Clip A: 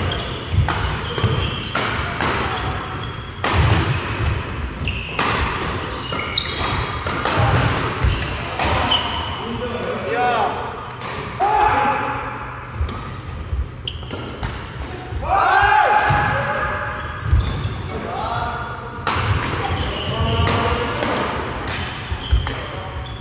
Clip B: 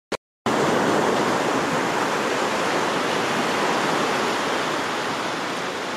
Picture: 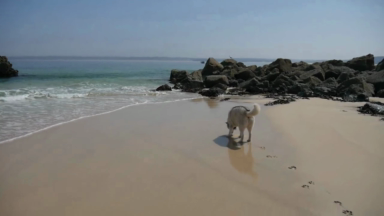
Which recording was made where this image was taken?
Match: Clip B